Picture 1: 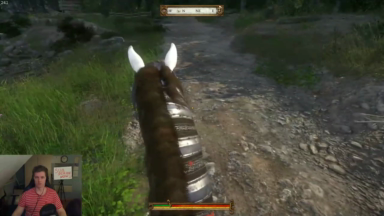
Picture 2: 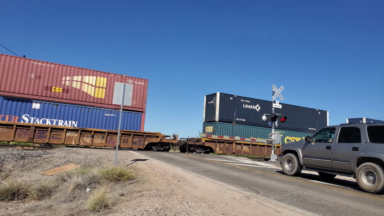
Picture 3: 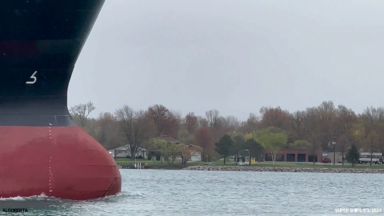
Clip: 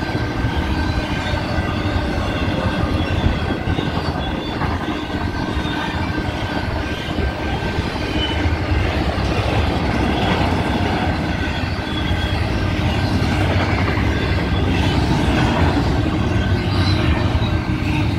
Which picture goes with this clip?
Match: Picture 2